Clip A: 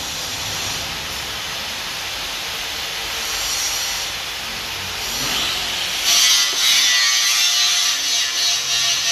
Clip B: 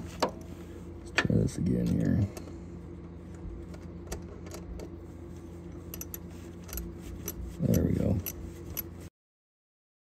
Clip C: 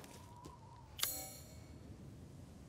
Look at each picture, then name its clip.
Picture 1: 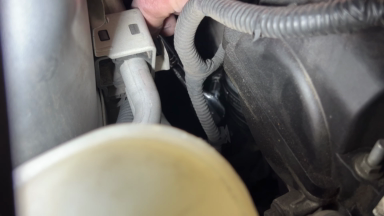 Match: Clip B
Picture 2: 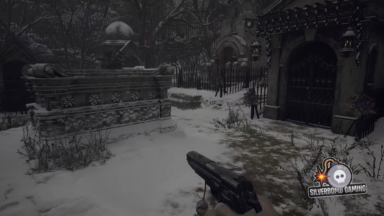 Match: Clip C